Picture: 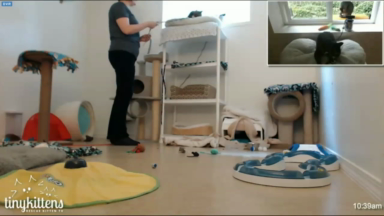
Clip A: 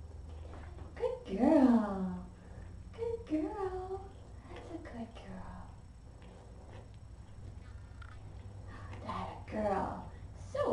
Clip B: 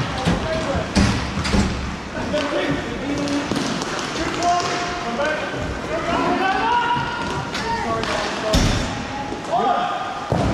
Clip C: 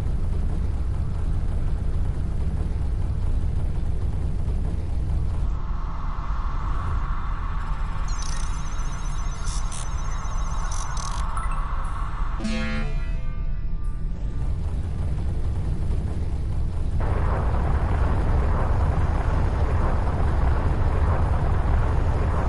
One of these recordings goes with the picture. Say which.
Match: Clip A